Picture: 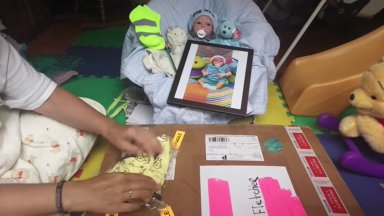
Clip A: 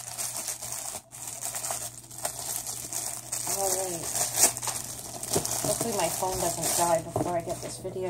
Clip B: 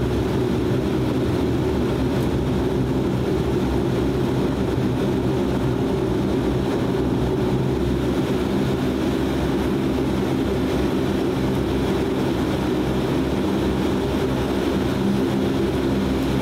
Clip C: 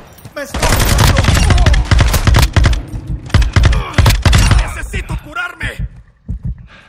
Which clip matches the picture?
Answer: A